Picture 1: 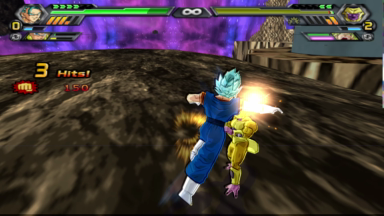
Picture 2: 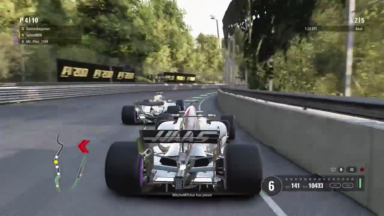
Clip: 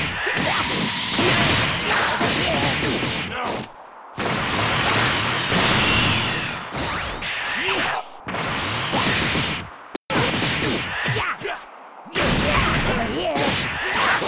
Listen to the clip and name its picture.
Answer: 1